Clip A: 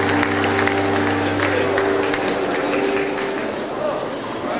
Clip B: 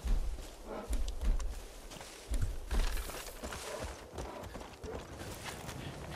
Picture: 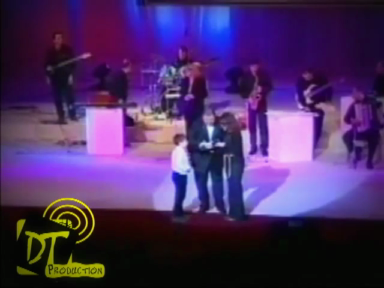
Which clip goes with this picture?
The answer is A